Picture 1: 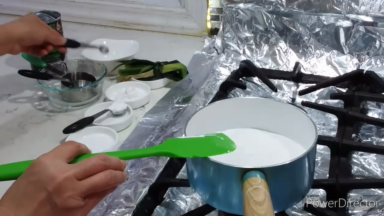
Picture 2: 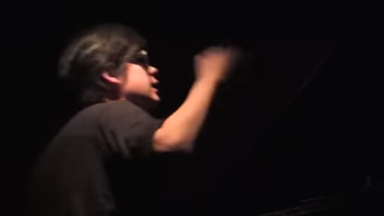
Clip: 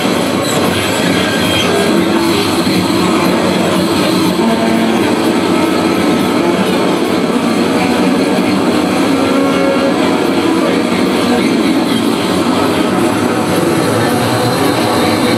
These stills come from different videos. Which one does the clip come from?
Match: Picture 2